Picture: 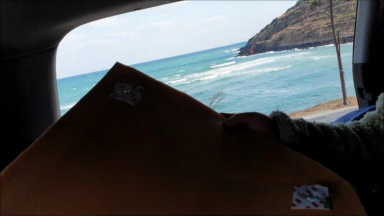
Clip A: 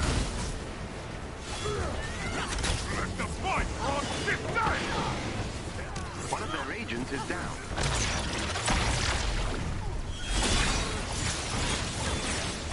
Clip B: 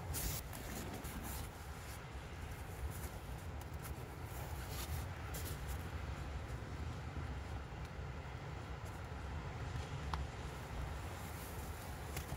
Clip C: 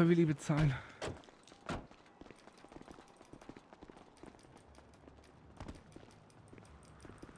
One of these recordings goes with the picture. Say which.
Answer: B